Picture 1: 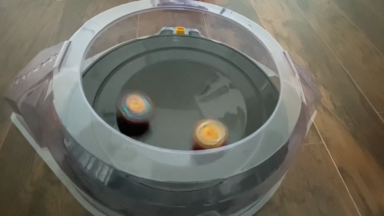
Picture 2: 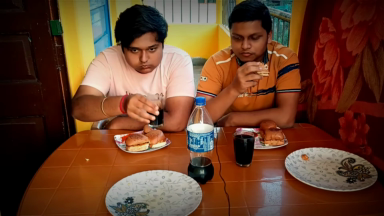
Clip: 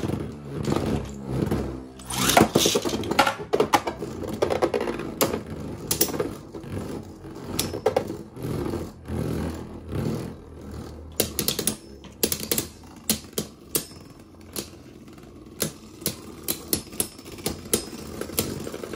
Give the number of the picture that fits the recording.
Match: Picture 1